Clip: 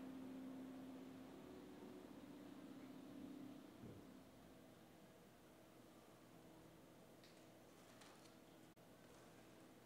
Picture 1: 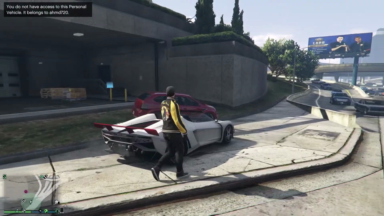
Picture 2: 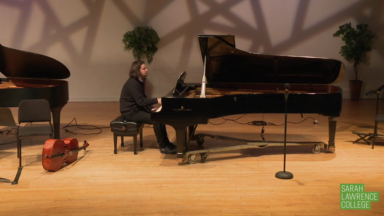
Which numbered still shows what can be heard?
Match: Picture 2